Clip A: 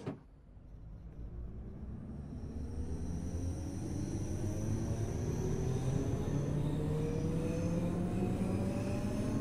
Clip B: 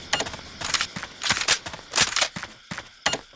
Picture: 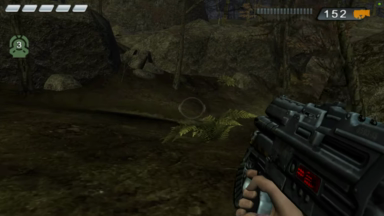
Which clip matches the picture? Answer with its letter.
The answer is B